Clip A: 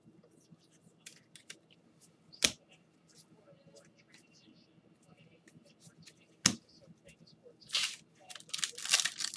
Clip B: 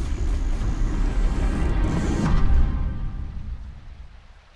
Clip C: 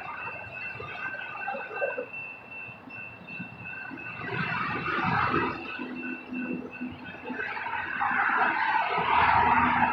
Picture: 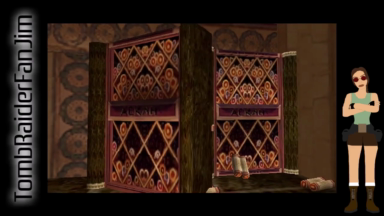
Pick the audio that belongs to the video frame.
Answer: B